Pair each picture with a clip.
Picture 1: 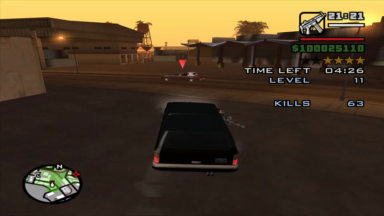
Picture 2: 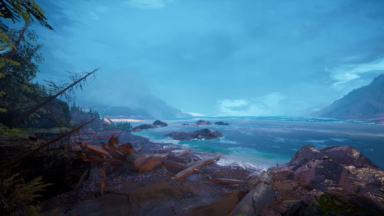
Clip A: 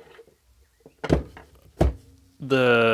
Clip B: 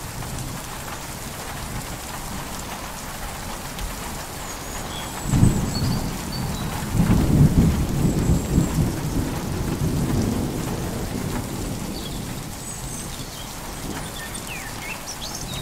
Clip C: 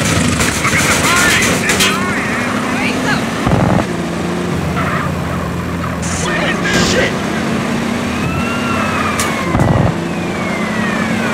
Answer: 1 C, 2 B